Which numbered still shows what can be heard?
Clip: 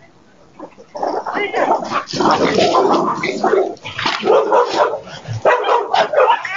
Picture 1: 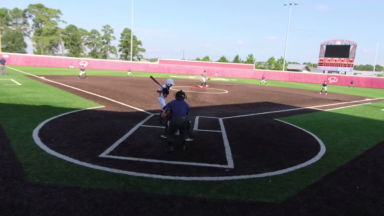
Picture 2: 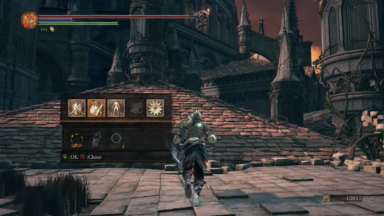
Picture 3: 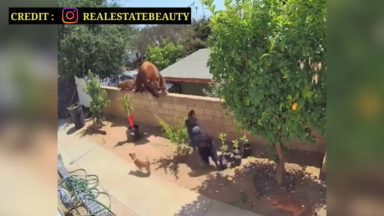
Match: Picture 3